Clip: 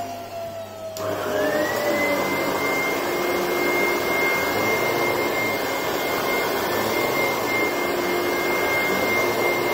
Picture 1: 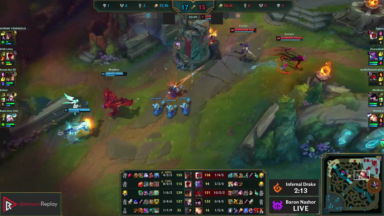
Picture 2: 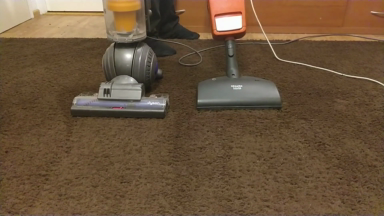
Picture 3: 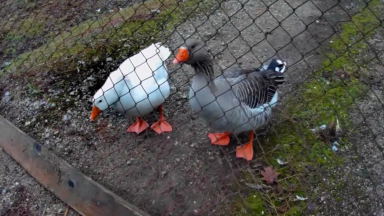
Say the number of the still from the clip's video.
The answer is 2